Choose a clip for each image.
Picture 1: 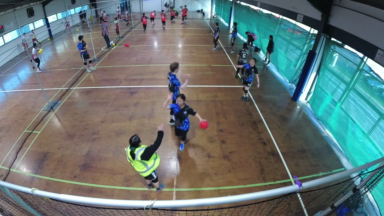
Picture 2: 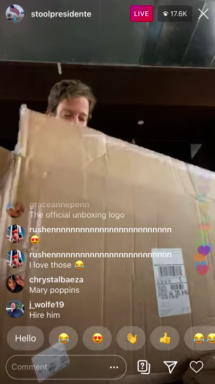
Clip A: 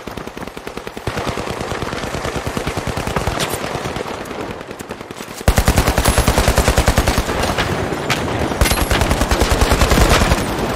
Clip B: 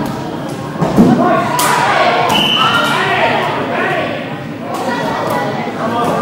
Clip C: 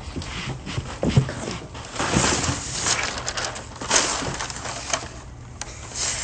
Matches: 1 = B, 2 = C